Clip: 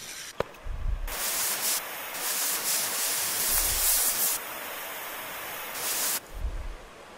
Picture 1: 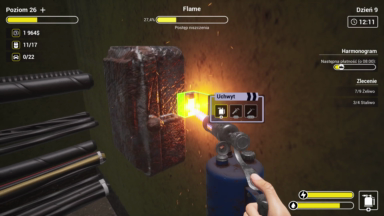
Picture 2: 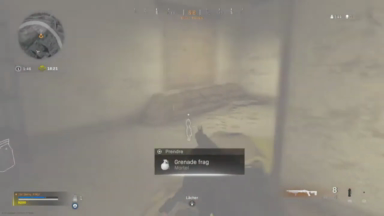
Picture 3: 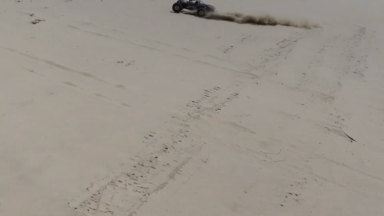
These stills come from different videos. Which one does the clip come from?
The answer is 1